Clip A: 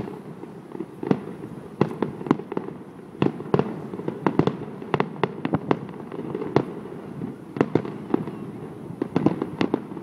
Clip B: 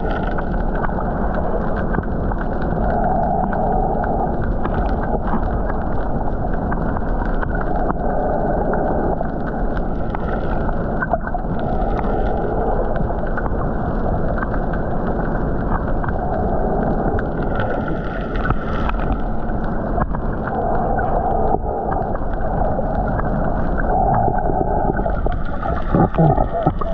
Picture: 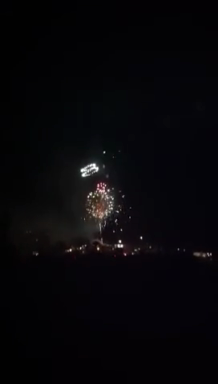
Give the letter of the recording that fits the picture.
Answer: A